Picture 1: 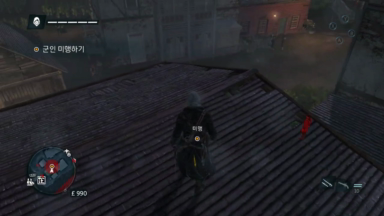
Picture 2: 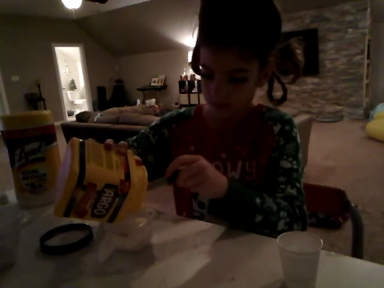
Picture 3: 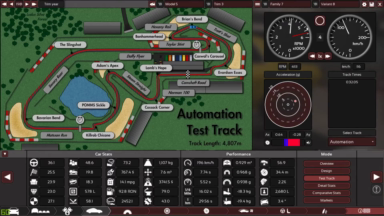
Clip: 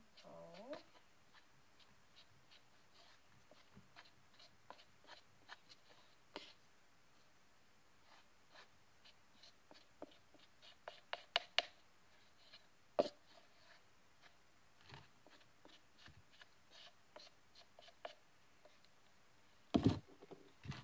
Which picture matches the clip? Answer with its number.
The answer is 2